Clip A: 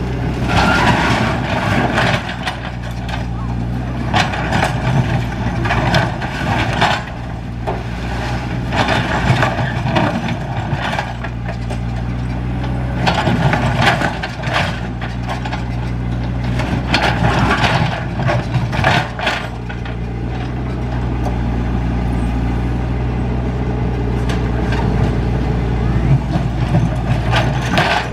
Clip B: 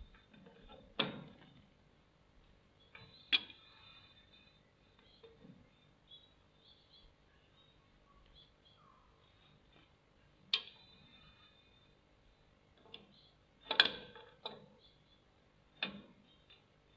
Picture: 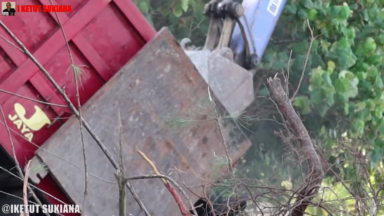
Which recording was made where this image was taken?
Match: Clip A